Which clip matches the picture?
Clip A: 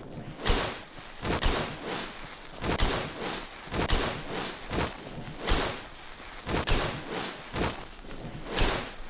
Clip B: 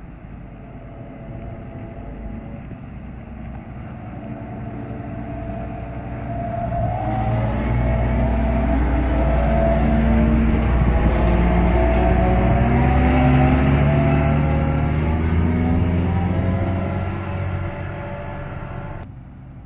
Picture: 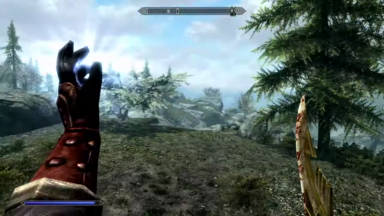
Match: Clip A